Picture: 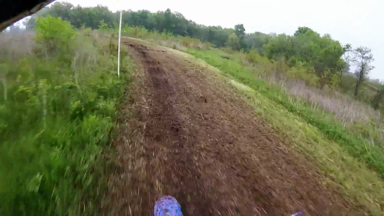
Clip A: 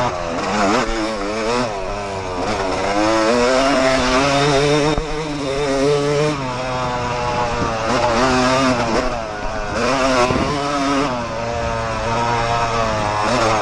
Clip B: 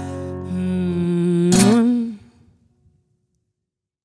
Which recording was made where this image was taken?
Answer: A